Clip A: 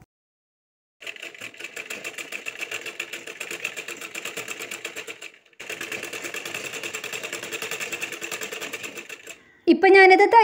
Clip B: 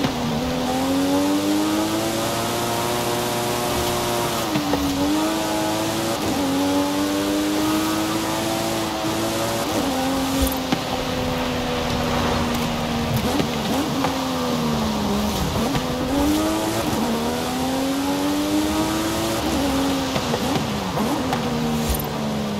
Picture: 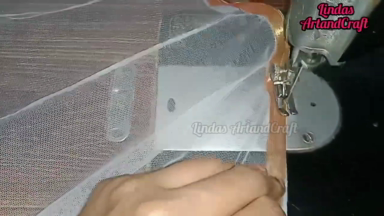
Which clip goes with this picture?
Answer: A